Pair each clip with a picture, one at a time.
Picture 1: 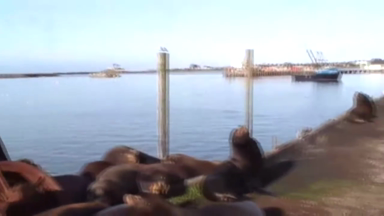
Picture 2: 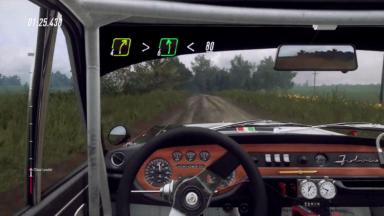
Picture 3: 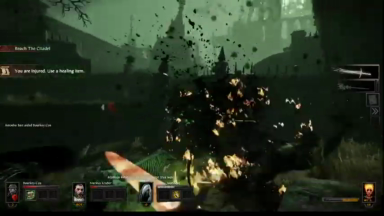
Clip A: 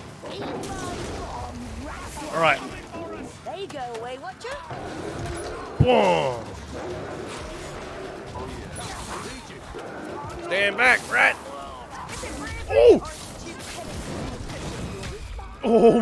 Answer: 3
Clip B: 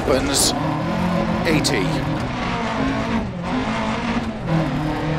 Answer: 2